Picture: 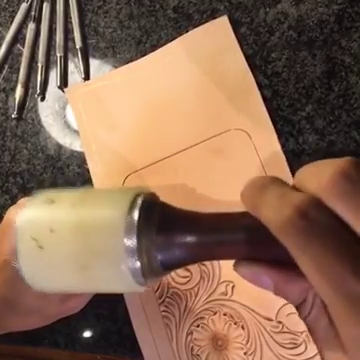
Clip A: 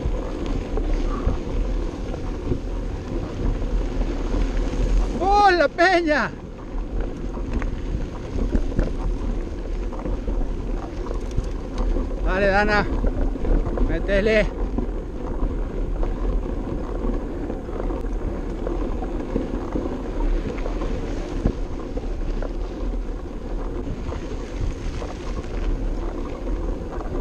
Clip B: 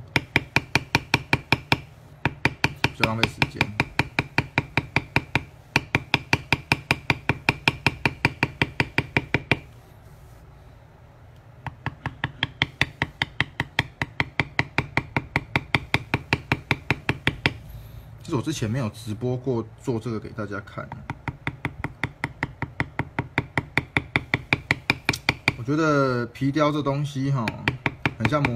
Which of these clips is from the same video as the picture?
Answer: B